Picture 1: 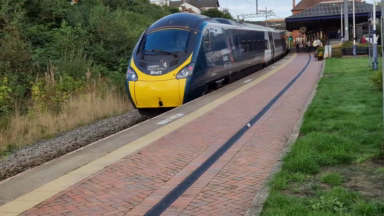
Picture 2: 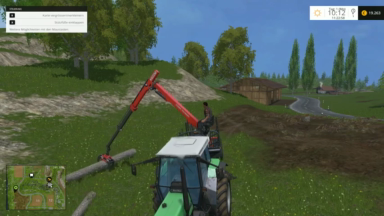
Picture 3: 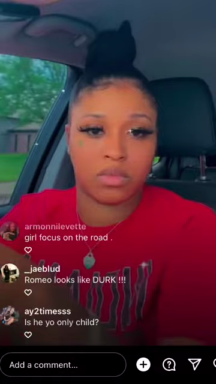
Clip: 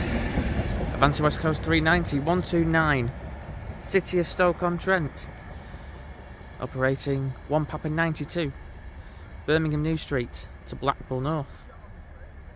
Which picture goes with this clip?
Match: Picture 1